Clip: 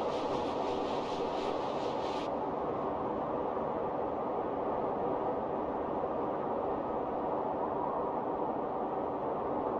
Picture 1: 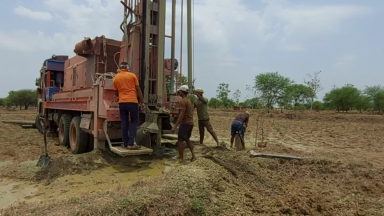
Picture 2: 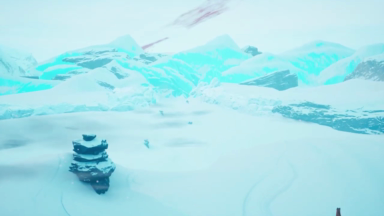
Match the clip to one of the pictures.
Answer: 2